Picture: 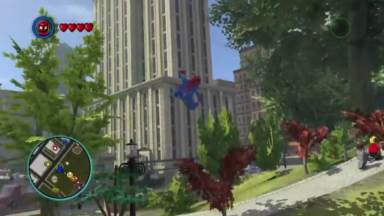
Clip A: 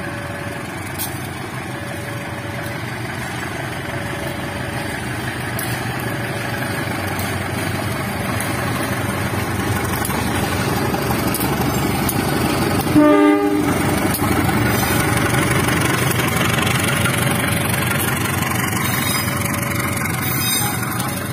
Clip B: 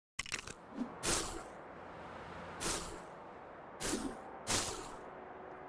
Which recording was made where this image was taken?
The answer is B